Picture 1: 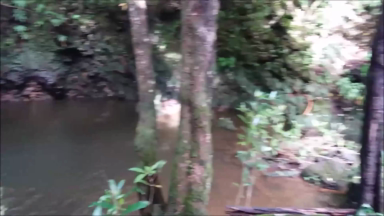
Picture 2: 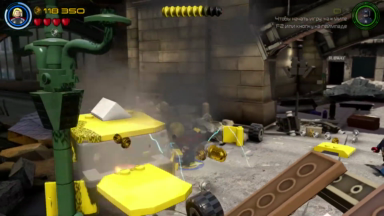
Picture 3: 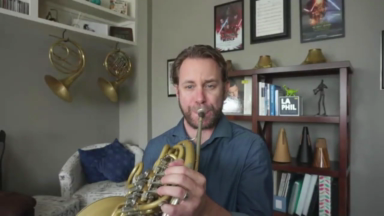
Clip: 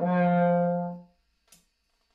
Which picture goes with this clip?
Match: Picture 3